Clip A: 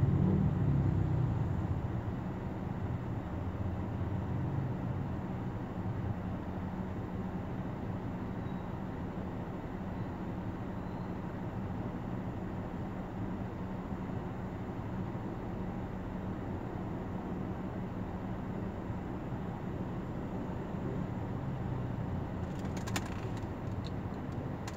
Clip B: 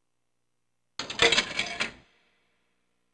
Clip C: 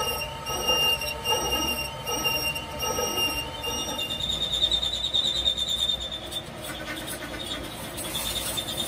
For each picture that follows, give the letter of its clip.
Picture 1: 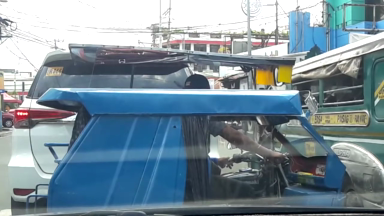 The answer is A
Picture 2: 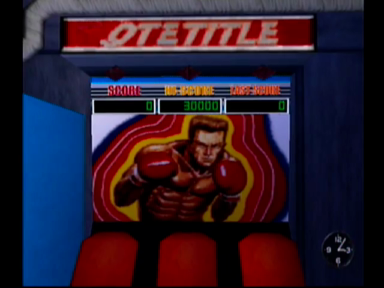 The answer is B